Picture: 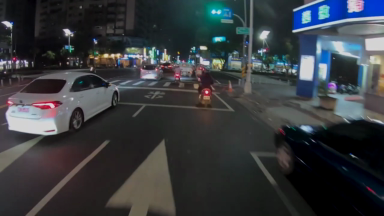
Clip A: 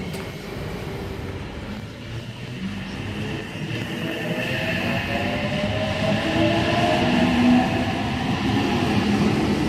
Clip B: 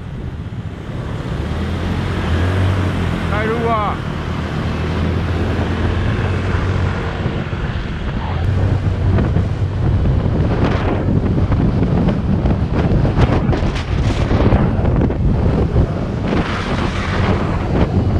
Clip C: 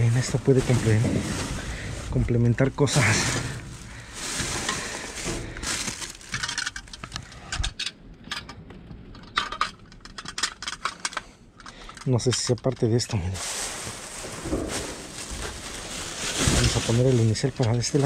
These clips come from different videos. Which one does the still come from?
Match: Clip B